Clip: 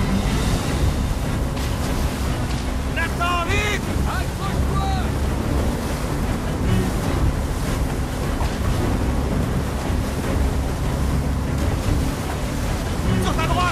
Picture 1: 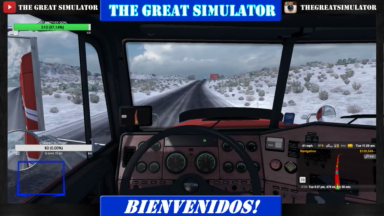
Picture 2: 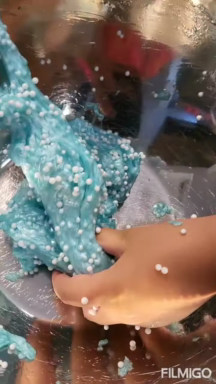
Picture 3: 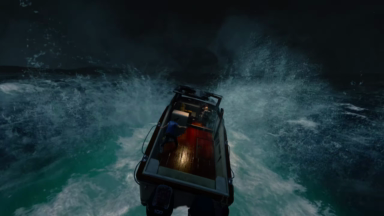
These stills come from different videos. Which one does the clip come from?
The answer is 3